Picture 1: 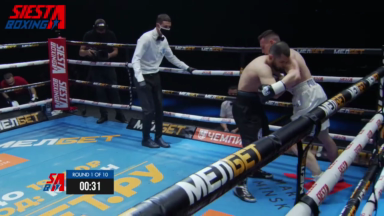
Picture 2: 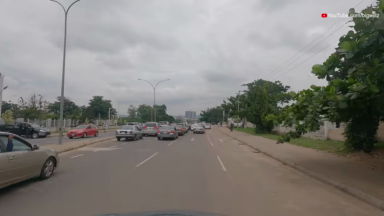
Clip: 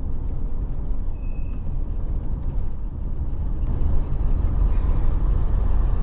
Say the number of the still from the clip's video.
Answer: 2